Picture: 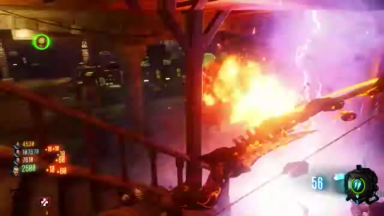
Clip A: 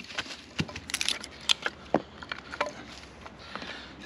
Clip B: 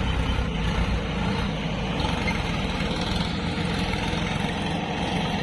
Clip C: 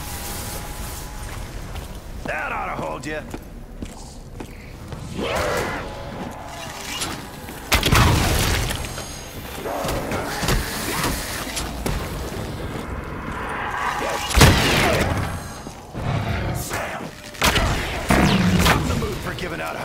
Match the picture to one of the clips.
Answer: C